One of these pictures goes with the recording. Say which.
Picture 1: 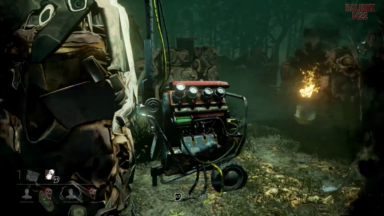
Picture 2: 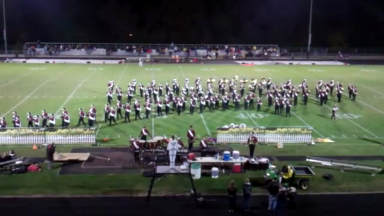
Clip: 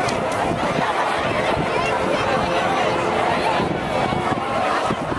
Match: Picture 2